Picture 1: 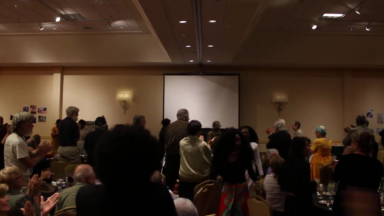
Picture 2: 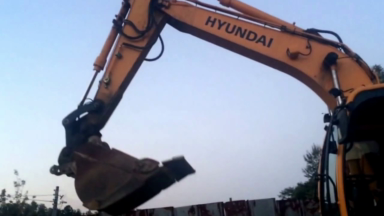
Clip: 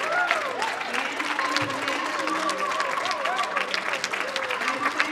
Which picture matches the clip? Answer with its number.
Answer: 1